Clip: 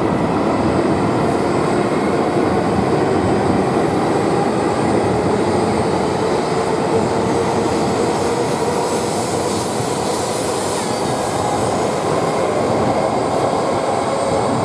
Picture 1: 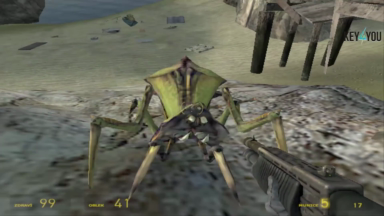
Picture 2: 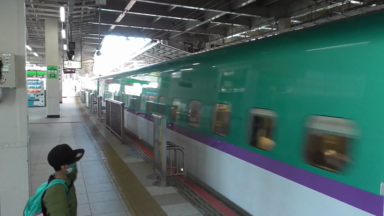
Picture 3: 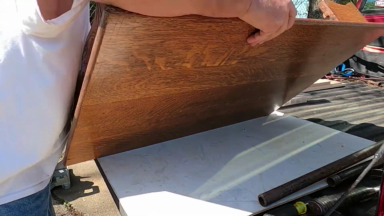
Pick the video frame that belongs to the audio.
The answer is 2